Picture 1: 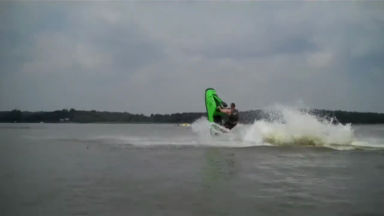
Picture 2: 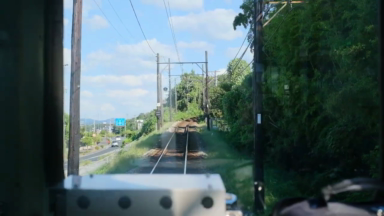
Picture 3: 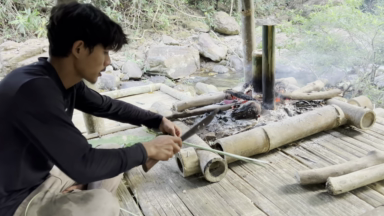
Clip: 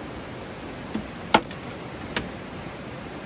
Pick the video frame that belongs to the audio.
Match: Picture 3